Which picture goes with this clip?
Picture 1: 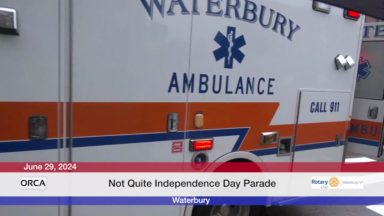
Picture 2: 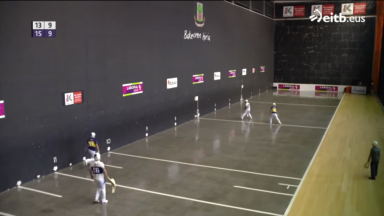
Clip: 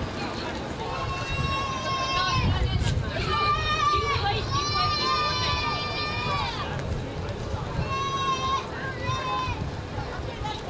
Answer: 1